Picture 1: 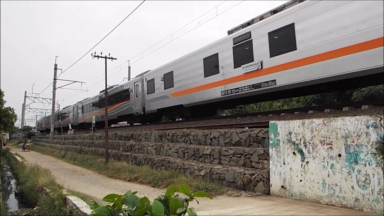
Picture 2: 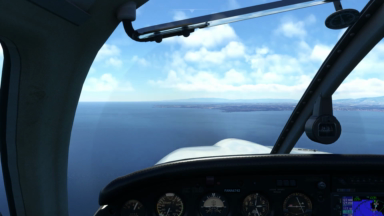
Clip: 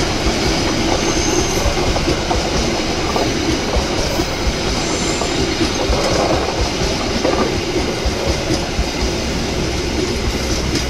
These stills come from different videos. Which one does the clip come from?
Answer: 1